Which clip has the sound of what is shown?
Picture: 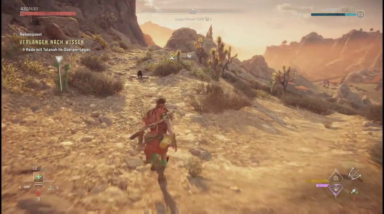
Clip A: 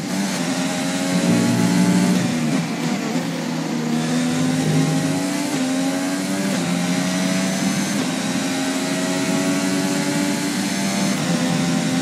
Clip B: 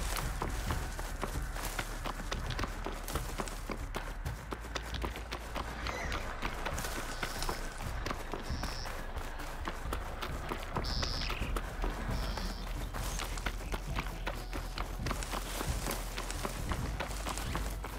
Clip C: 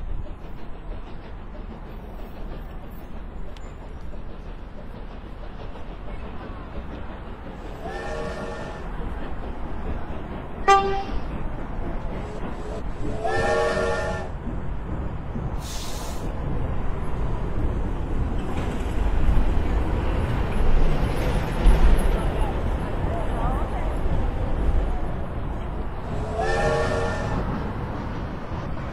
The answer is B